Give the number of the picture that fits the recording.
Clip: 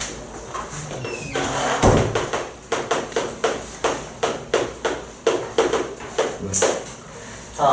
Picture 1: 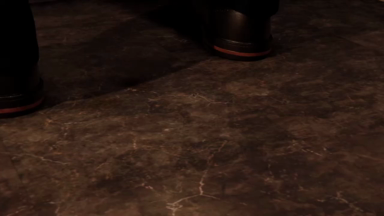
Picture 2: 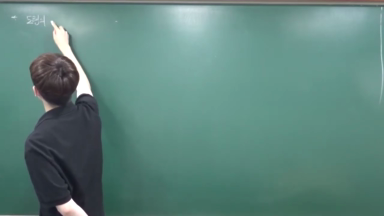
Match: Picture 2